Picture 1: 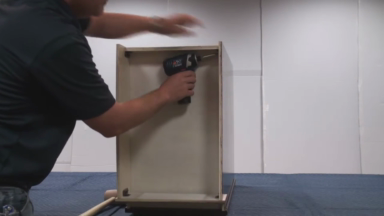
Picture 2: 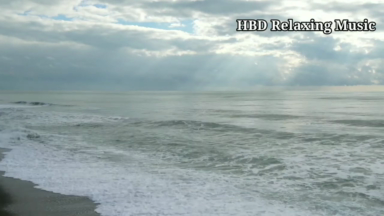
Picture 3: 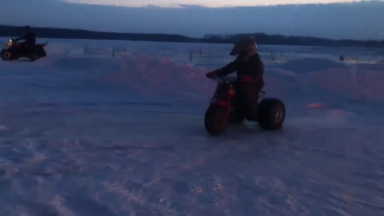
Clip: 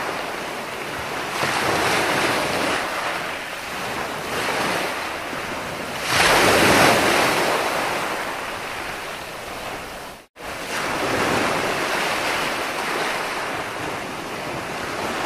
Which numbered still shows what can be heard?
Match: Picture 2